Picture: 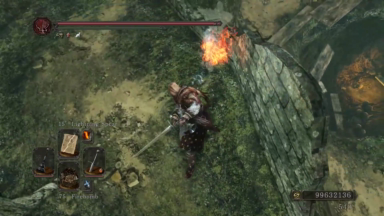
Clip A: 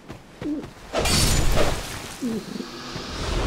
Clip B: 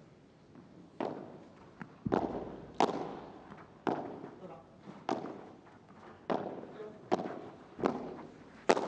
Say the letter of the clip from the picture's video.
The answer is A